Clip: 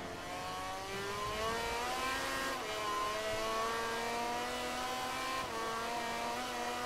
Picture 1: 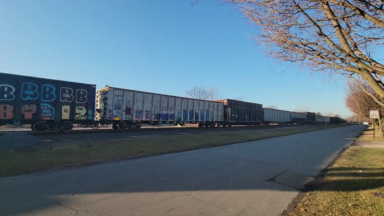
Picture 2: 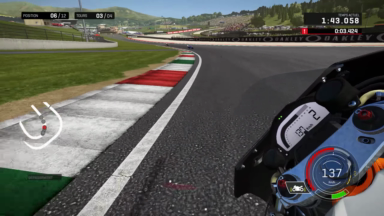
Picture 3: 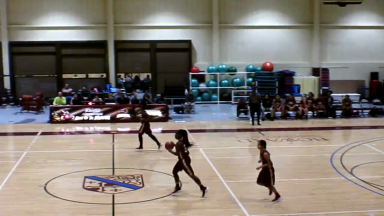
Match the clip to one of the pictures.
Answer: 2